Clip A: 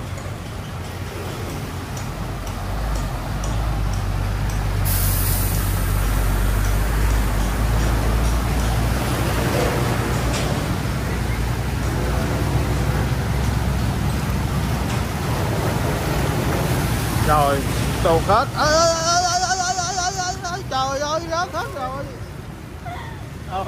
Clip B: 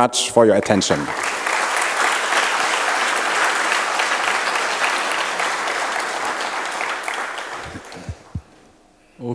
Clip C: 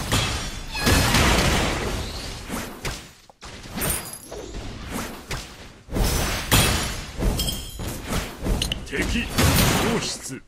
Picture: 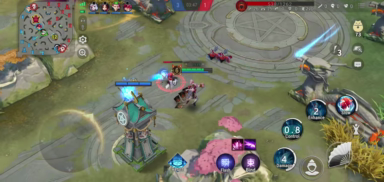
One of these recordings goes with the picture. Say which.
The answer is C